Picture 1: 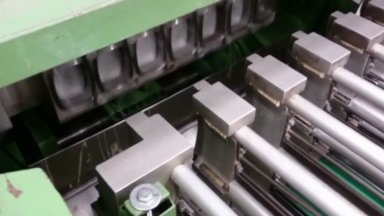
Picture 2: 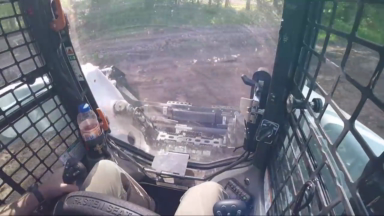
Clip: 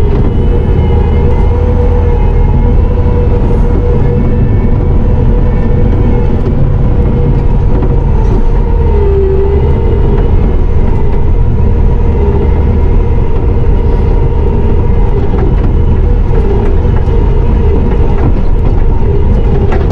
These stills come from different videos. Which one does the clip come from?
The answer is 2